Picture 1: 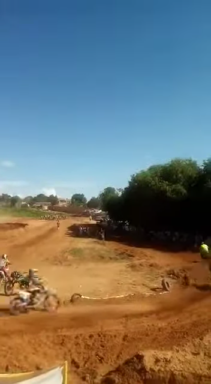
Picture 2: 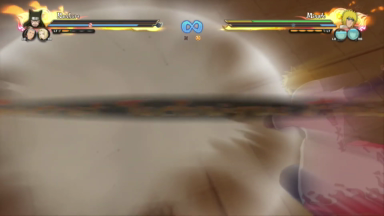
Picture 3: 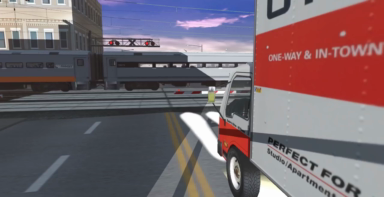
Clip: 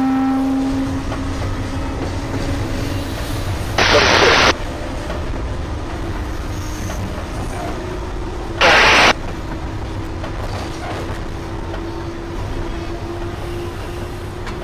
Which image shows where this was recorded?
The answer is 3